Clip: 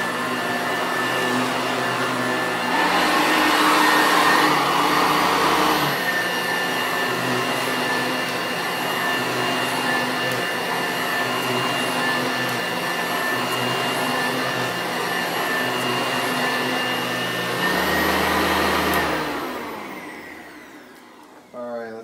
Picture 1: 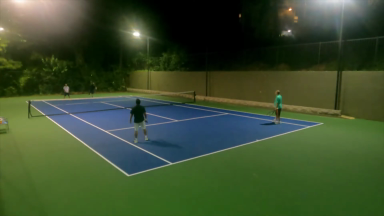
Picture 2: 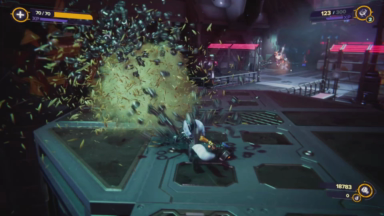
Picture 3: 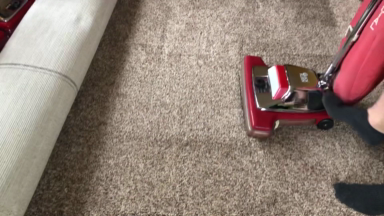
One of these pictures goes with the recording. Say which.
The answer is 3